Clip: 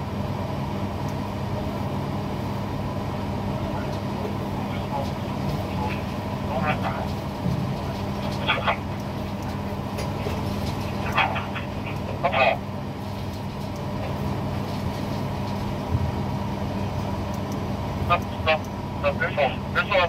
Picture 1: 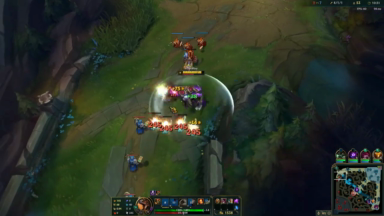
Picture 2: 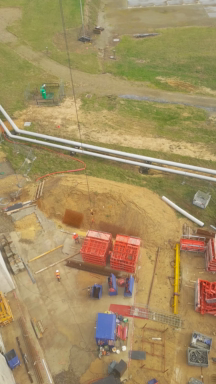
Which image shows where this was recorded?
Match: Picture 2